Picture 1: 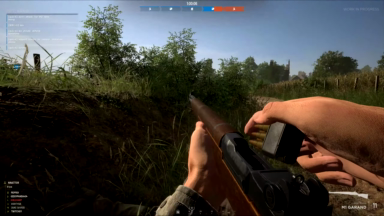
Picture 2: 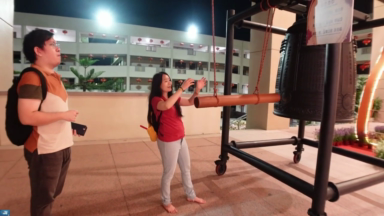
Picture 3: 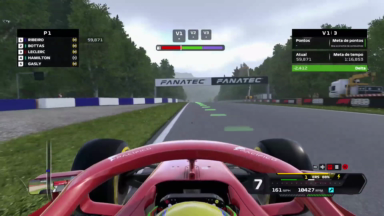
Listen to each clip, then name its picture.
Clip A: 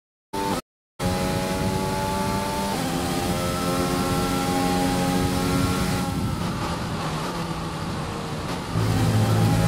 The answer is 3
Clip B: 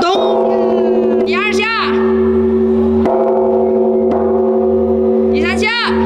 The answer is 2